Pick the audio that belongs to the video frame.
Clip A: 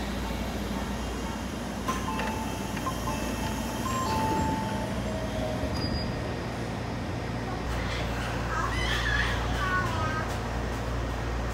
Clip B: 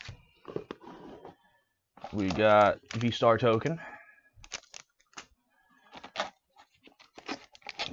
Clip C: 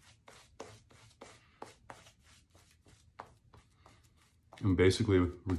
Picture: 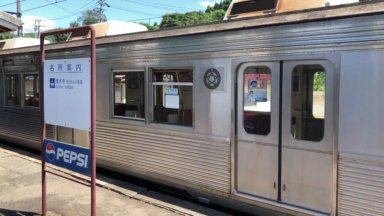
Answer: A